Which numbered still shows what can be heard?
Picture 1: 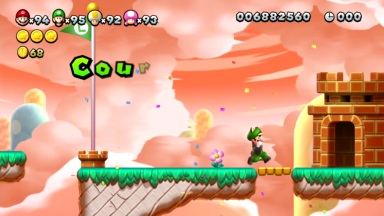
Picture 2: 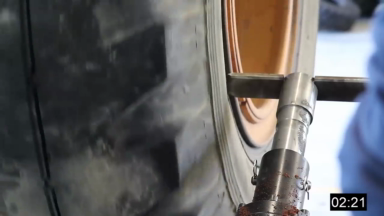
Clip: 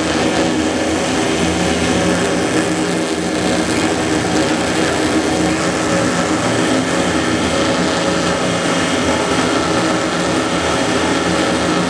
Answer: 2